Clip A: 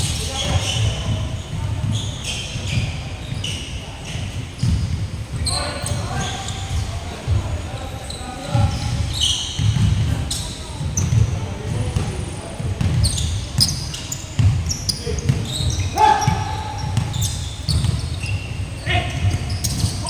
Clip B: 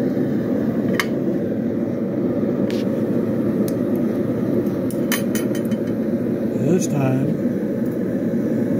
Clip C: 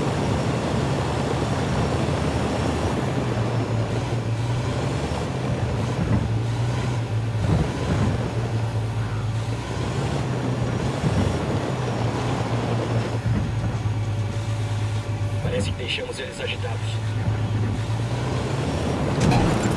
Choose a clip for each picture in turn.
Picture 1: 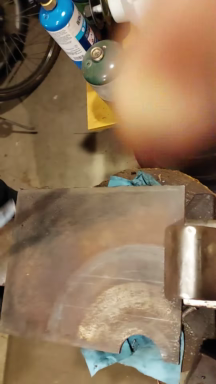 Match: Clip B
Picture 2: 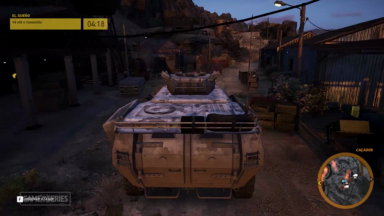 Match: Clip C